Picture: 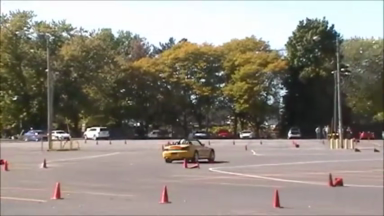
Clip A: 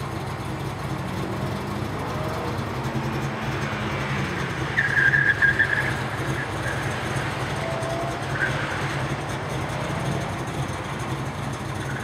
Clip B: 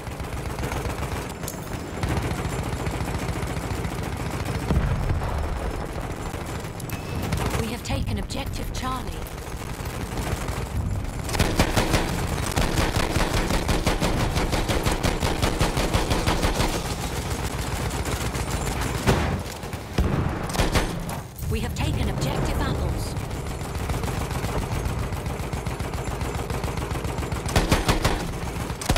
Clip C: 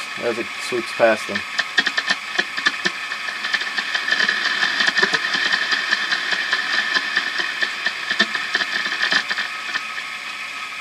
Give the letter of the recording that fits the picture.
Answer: A